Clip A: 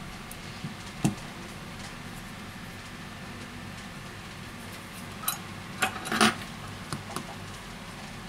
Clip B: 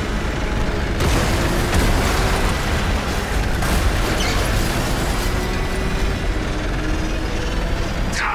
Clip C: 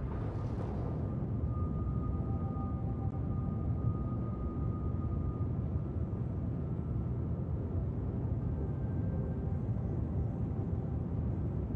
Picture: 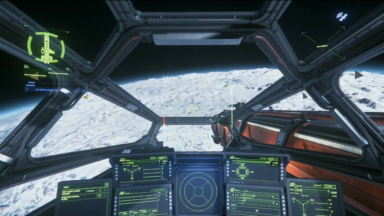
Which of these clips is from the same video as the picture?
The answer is C